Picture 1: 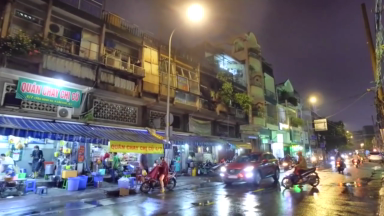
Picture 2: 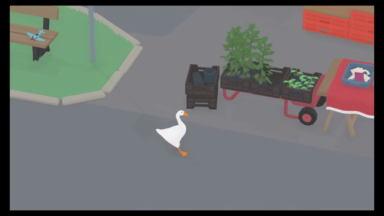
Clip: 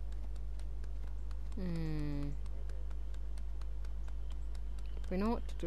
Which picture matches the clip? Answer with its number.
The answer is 2